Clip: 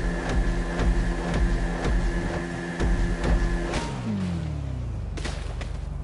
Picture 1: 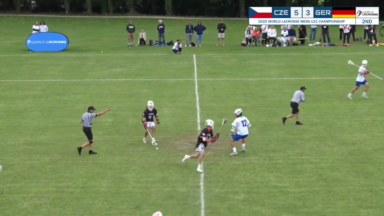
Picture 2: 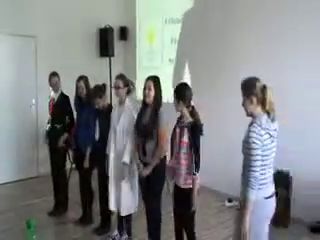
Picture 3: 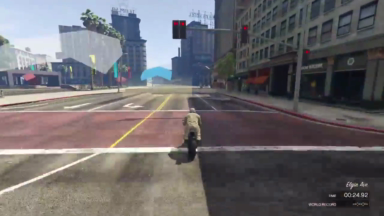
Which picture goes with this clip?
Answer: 3